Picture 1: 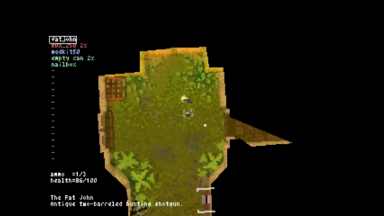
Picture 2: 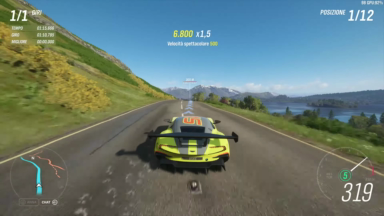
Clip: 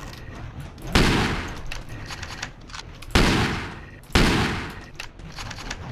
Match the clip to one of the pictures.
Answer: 1